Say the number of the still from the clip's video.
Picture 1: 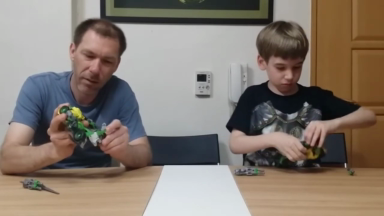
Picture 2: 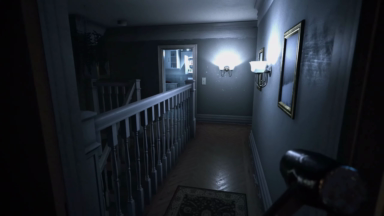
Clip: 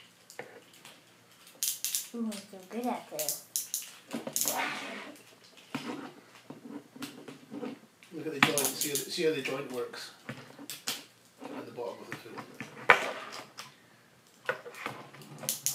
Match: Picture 1